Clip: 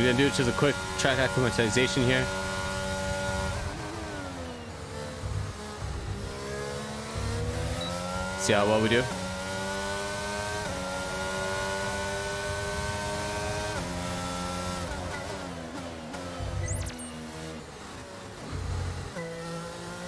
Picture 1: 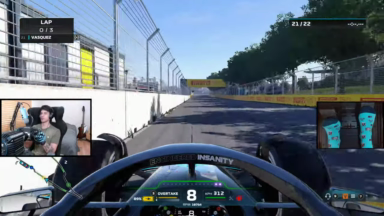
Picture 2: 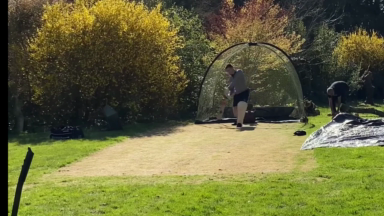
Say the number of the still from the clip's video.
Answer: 1